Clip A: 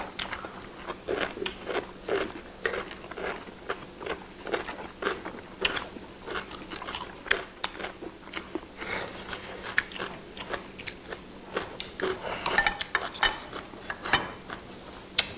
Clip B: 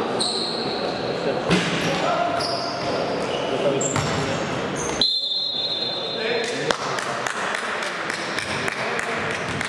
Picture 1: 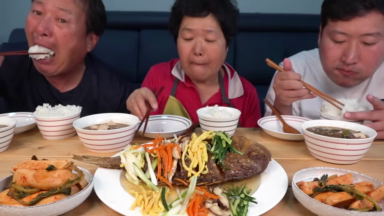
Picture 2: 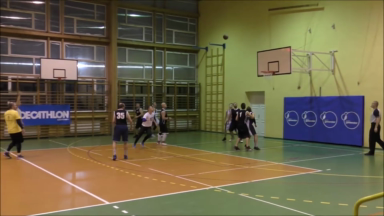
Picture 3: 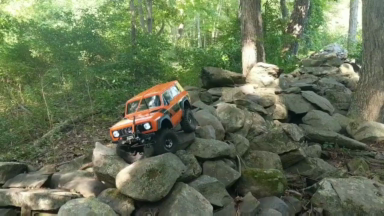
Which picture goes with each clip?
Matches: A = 1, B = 2